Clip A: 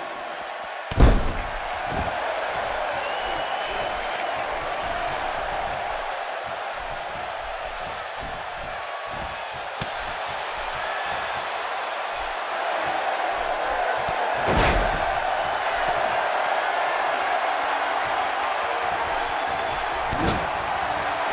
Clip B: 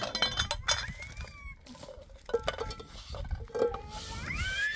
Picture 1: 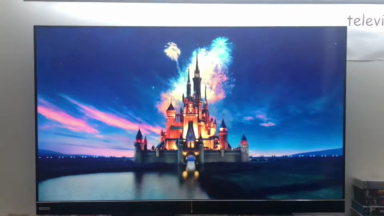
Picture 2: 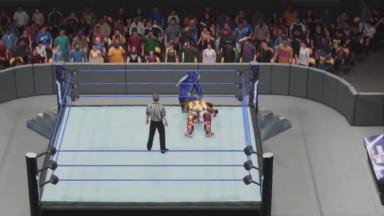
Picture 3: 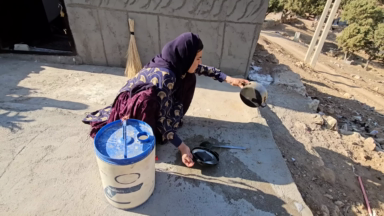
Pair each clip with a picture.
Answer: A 2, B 3